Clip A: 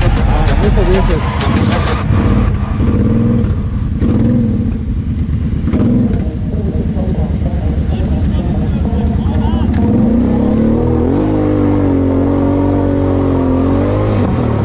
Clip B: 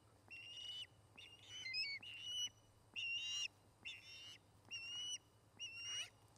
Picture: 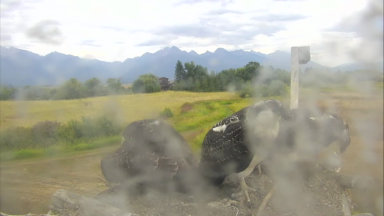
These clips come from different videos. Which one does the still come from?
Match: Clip B